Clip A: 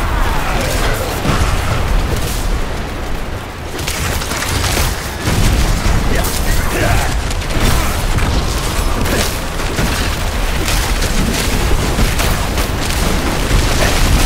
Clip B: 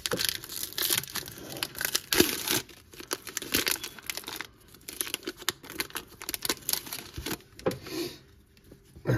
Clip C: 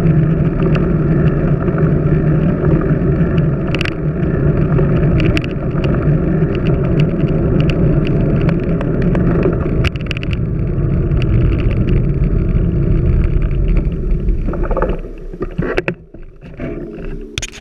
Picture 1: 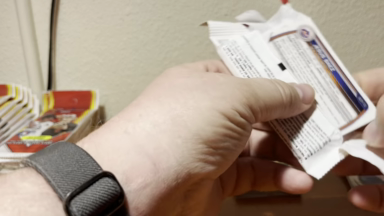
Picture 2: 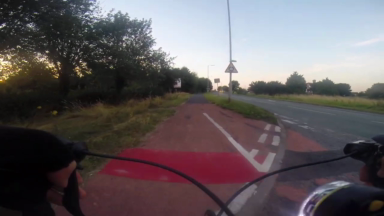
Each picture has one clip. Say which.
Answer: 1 B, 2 C